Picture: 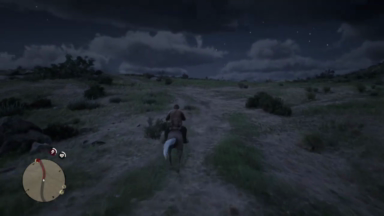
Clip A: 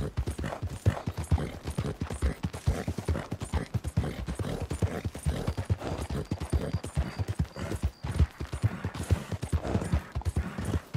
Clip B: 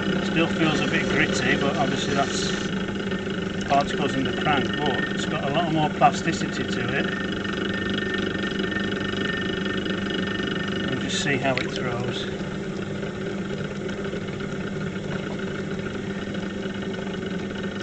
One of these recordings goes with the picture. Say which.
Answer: A